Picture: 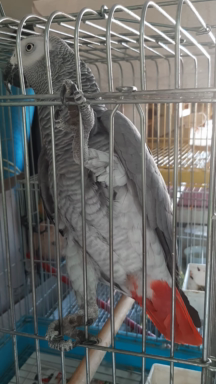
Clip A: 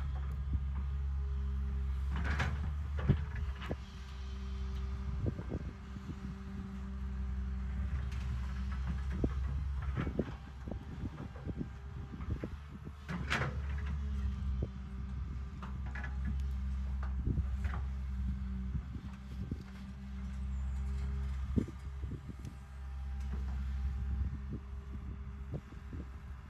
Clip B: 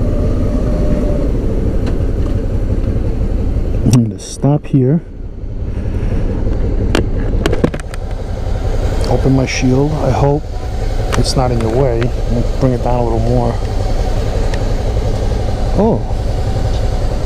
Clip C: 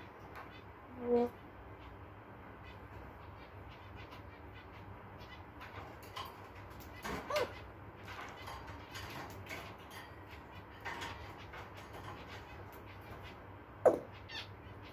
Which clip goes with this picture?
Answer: C